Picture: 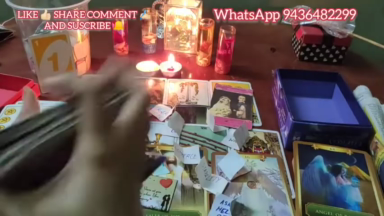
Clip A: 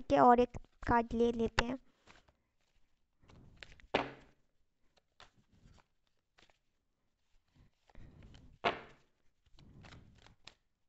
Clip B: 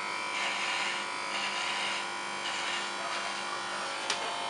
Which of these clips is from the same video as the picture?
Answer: A